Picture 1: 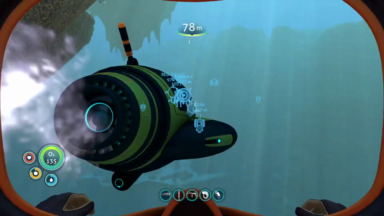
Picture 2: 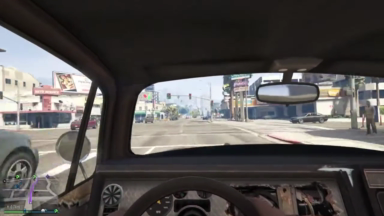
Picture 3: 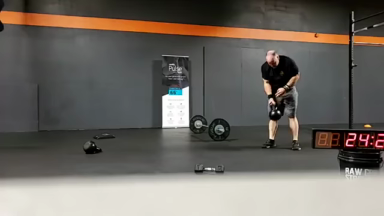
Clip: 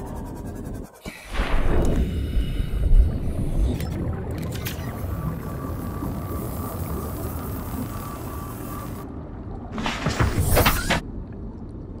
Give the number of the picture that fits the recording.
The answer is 1